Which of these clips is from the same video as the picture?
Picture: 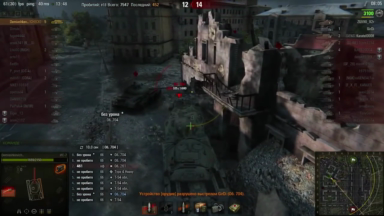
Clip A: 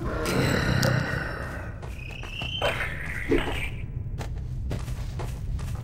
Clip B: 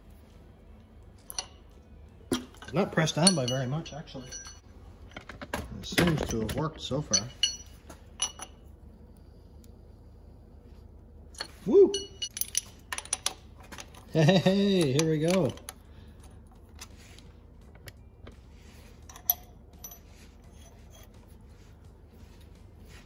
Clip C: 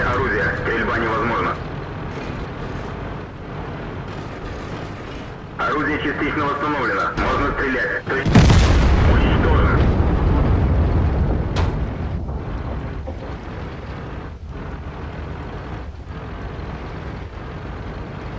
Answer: C